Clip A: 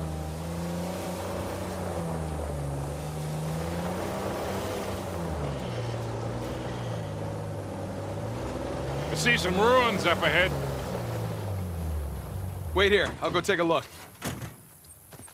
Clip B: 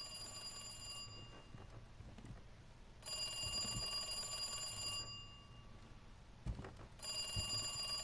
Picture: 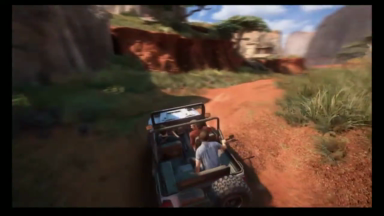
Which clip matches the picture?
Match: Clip A